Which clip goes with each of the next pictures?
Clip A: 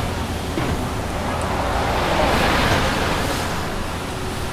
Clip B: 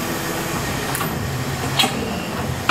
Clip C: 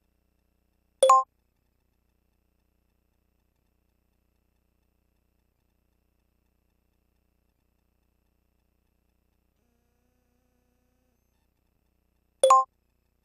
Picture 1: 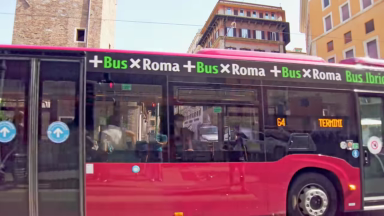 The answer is A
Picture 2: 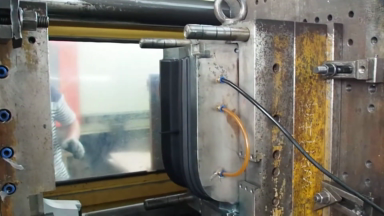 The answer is B